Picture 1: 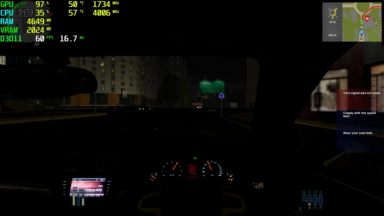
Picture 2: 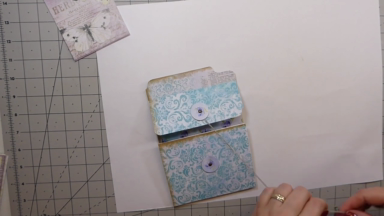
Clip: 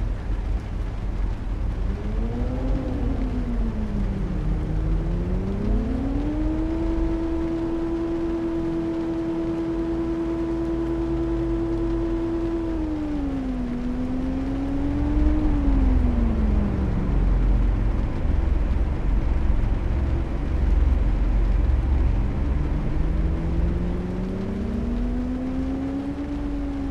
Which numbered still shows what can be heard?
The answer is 1